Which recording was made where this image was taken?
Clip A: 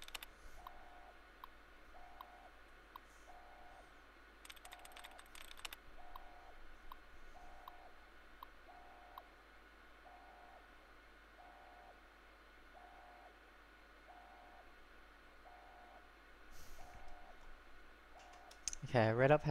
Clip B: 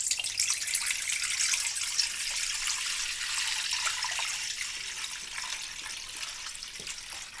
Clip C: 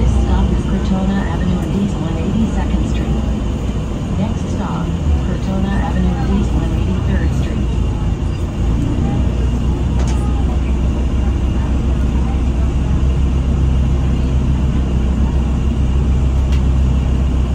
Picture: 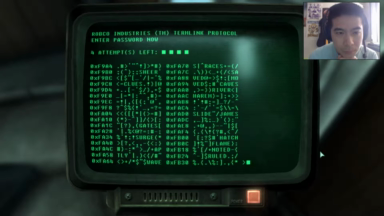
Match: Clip A